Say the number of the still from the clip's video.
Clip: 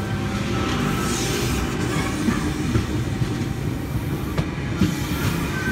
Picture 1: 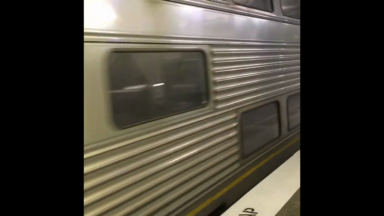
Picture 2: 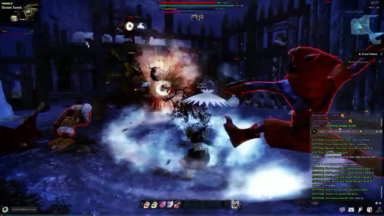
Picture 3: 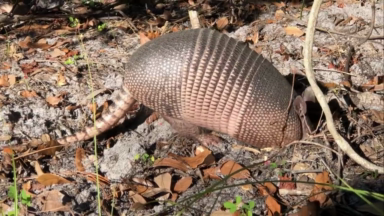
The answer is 1